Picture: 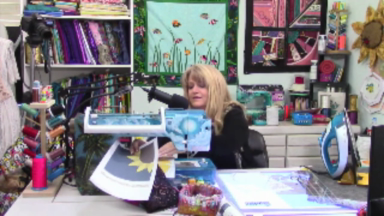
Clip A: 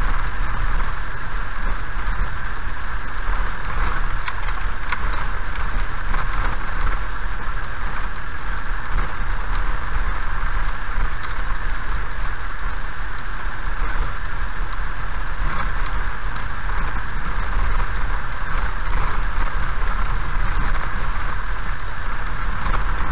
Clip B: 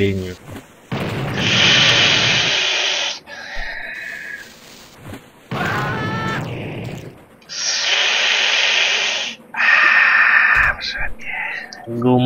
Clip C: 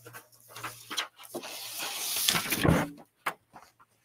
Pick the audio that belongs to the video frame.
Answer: C